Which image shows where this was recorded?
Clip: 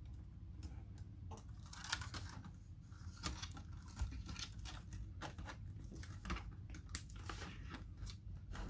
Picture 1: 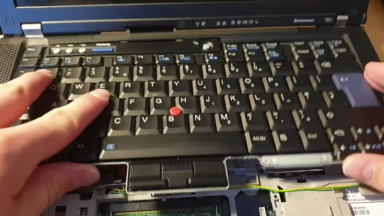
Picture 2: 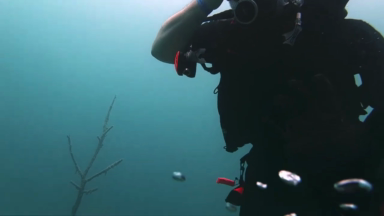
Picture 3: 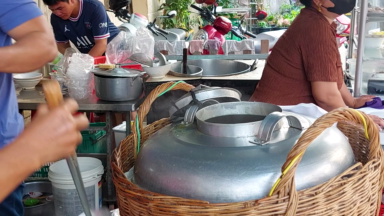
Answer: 1